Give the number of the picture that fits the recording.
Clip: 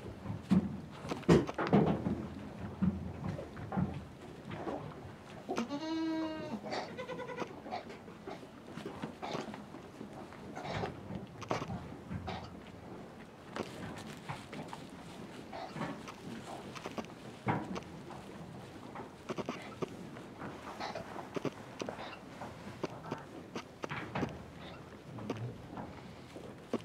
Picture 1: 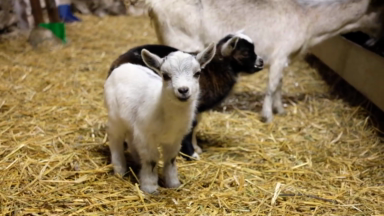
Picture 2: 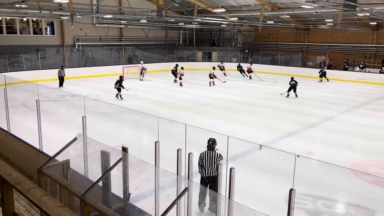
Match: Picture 1